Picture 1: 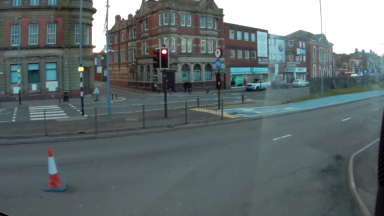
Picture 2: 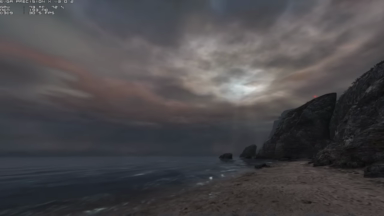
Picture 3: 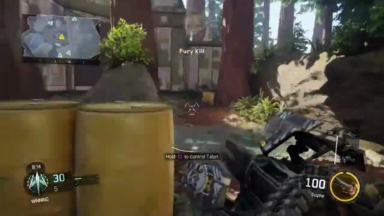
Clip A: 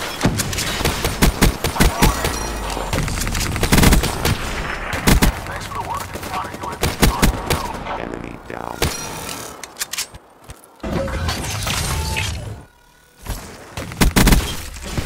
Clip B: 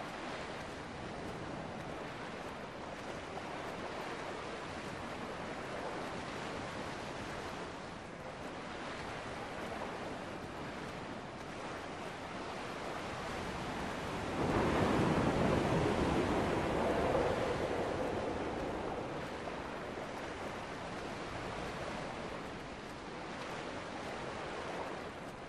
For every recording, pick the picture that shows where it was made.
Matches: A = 3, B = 2